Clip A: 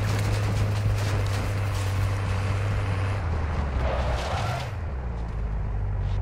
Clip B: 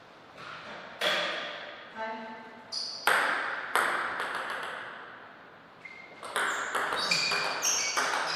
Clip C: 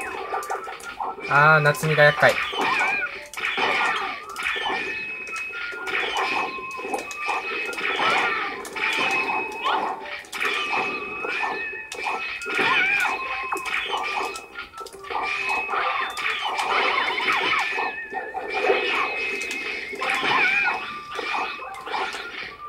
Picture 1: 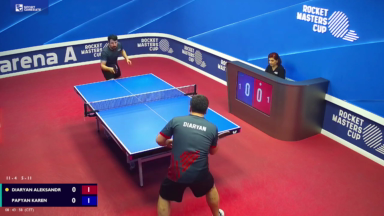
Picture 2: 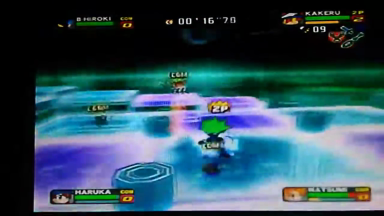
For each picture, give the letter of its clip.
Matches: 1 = B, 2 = C